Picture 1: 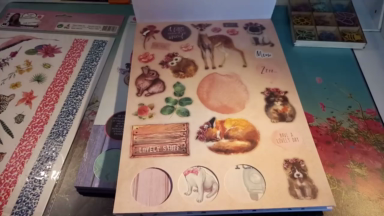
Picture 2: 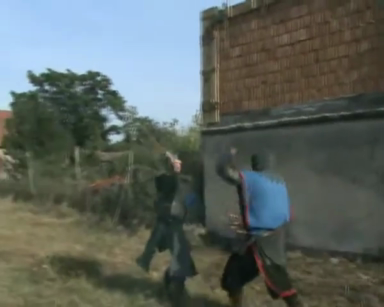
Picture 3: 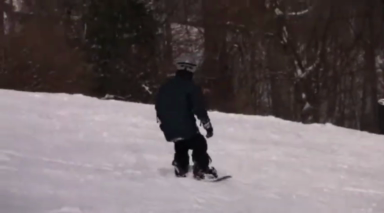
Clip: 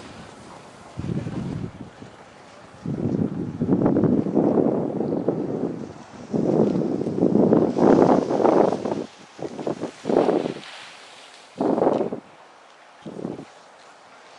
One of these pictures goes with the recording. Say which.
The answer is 3